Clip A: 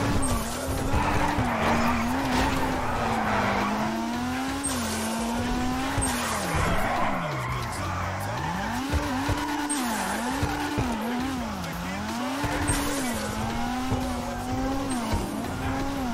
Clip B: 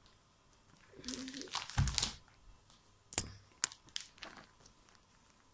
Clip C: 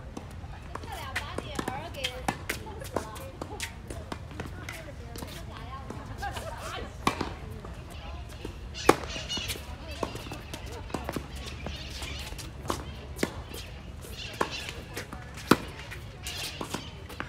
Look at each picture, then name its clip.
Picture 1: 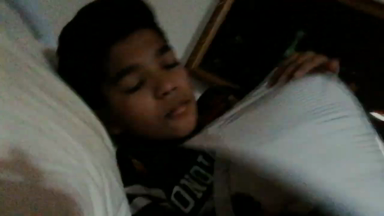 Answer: B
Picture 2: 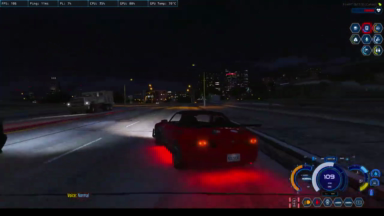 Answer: A